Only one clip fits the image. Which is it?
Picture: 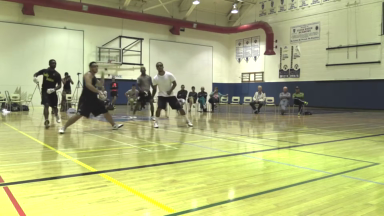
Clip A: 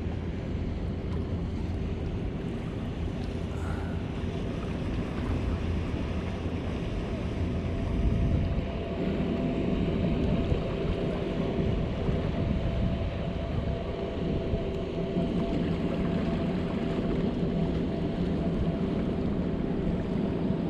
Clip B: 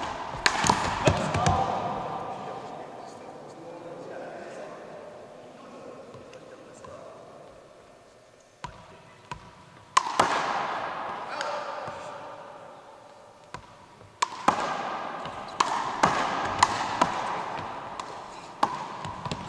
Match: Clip B